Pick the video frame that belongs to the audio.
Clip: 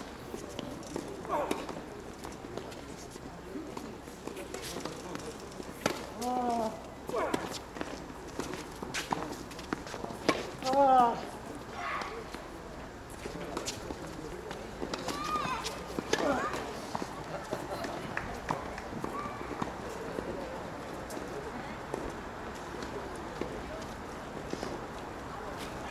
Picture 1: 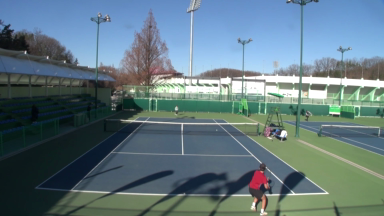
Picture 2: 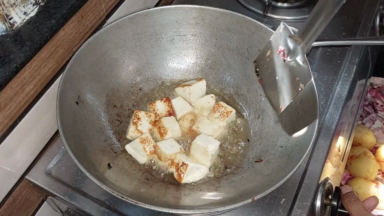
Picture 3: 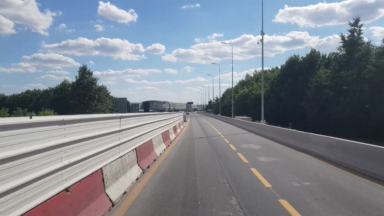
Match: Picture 1